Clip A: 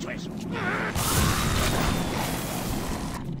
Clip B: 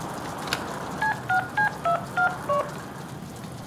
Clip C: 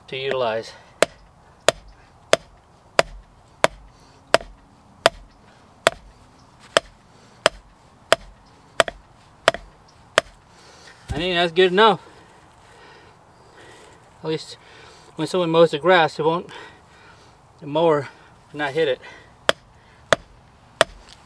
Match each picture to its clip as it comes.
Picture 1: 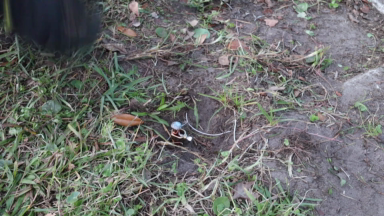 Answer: C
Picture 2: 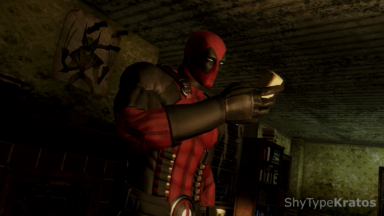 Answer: B